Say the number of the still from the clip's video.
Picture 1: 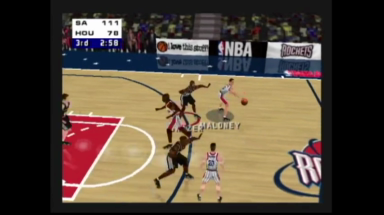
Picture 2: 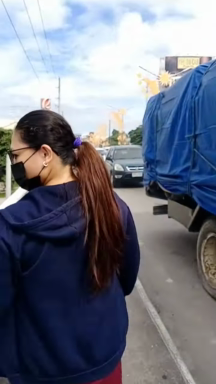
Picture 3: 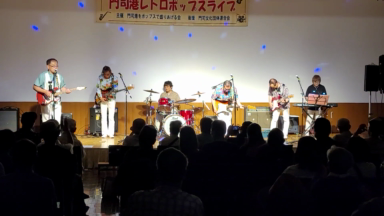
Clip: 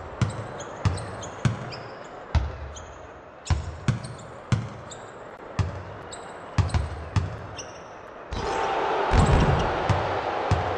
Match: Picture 1